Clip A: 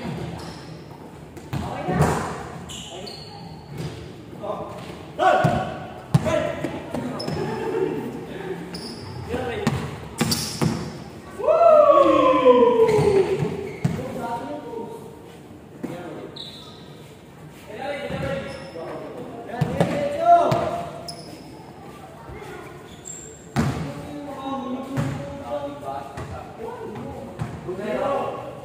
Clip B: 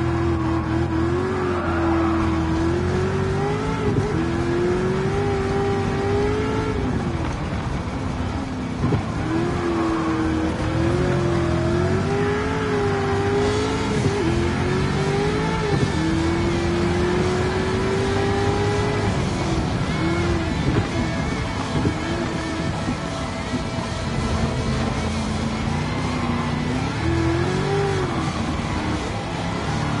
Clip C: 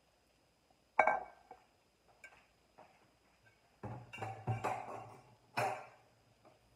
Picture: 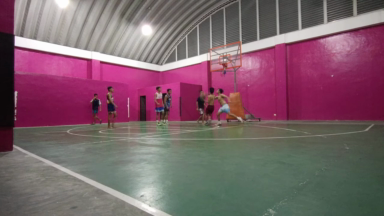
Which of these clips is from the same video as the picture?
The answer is A